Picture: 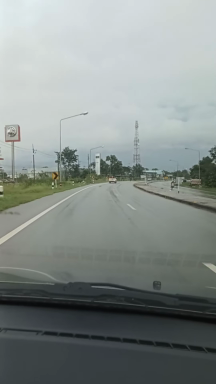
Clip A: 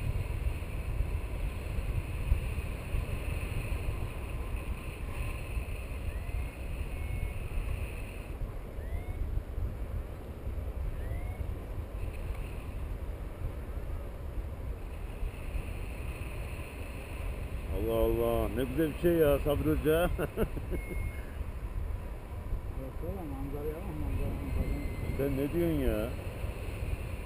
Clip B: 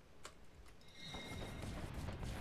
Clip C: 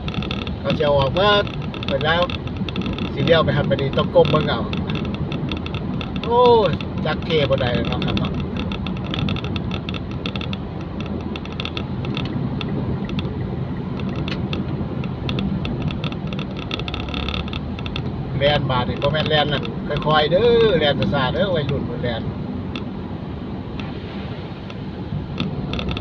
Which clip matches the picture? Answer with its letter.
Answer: C